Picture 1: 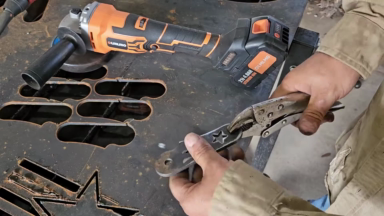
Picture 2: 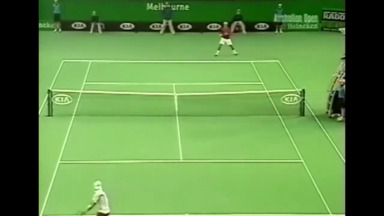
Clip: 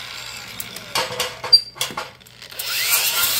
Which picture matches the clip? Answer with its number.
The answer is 1